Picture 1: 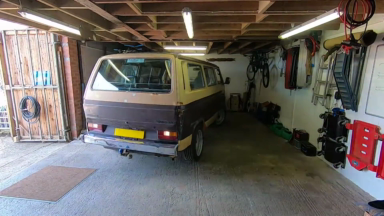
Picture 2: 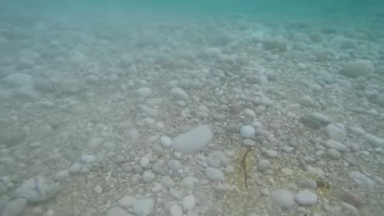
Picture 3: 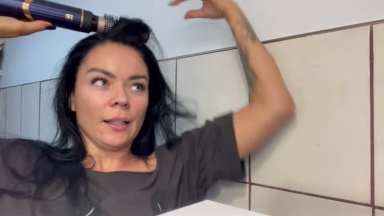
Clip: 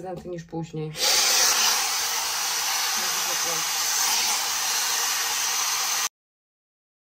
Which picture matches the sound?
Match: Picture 3